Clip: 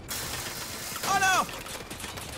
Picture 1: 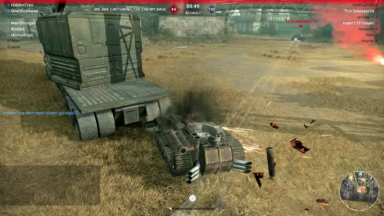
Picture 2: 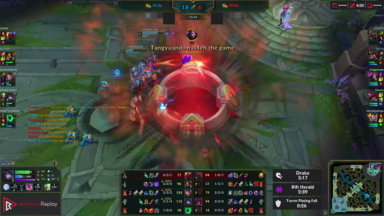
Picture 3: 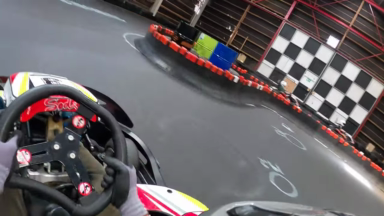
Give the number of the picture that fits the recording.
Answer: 1